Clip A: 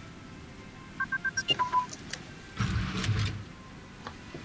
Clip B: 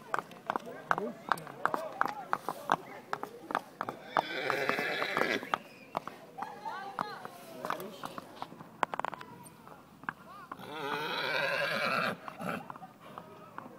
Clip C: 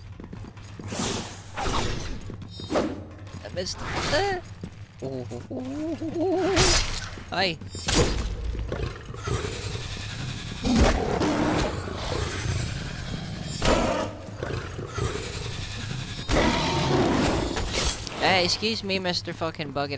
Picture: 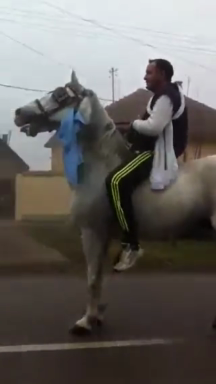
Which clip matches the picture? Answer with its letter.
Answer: B